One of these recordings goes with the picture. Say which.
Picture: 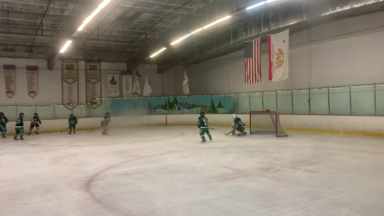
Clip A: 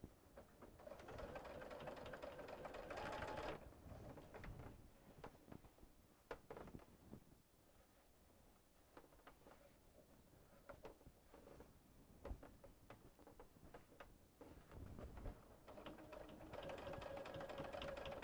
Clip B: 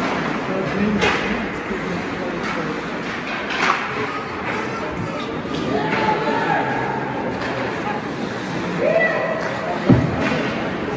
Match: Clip B